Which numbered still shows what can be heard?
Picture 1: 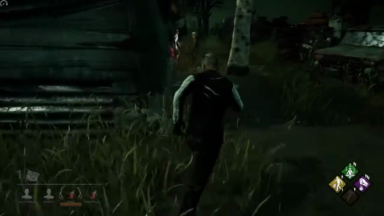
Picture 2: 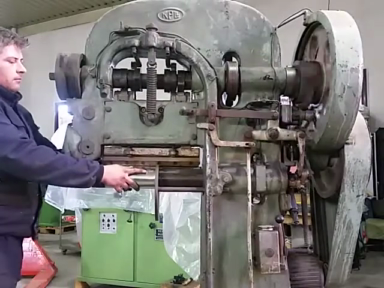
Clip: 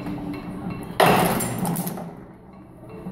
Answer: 2